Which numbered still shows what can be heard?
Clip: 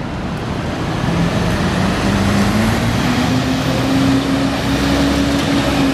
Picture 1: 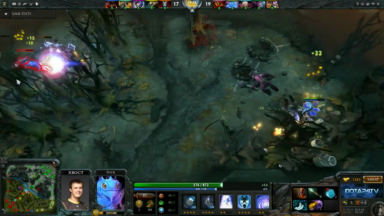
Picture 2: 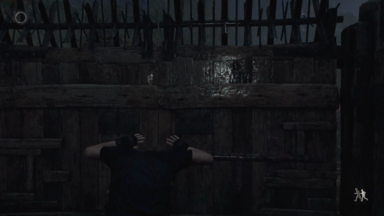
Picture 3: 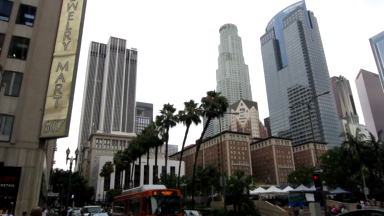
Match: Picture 3